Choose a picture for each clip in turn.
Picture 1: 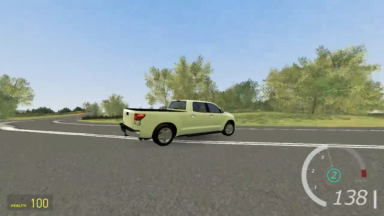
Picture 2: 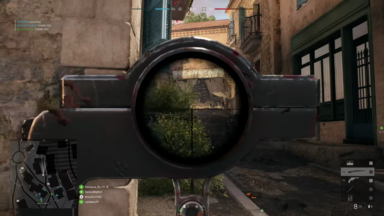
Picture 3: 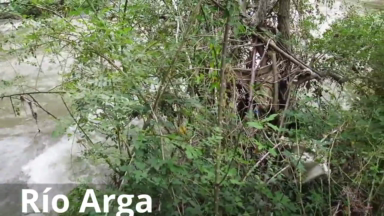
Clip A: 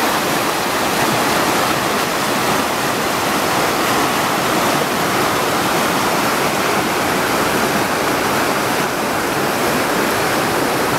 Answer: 3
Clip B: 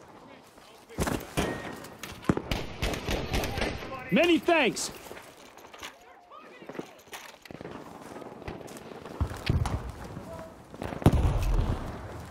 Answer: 2